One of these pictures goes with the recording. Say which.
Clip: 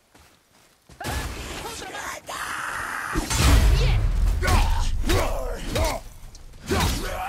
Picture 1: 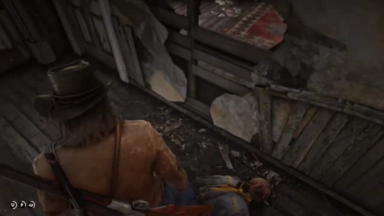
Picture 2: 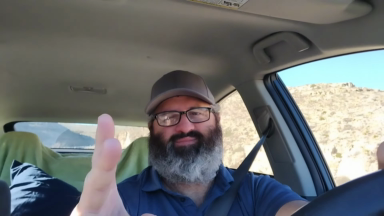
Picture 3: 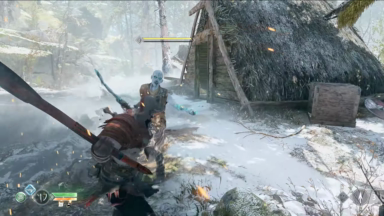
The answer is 3